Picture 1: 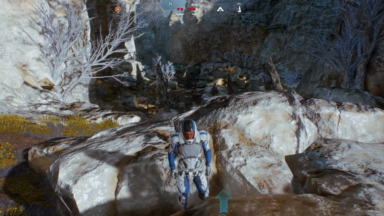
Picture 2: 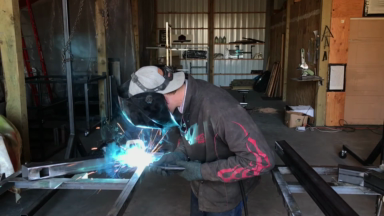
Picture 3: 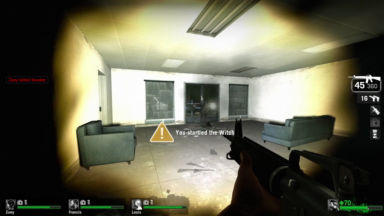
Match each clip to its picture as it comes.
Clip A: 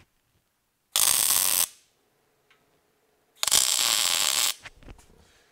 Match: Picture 2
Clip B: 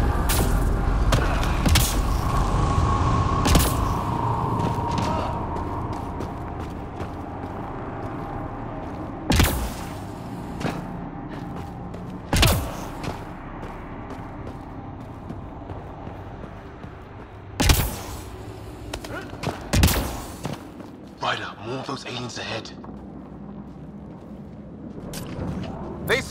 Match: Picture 1